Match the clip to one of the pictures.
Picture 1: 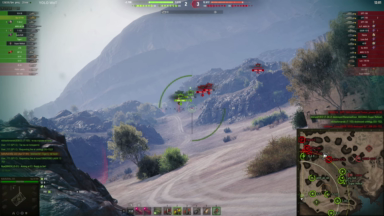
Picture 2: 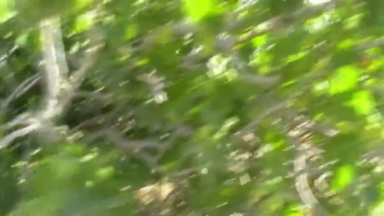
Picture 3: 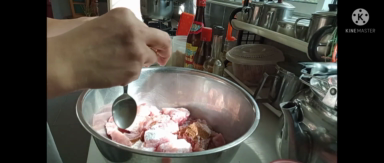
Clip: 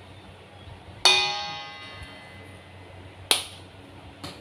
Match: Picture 3